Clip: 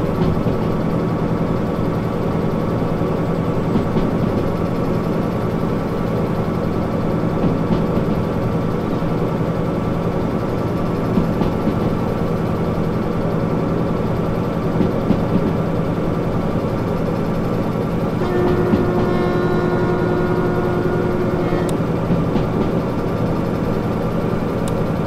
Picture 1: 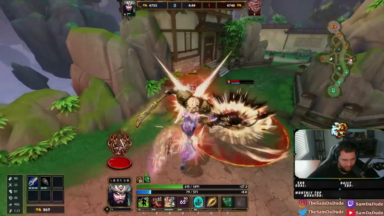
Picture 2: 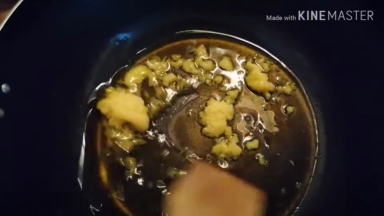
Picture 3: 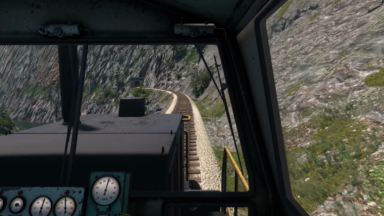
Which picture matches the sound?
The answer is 3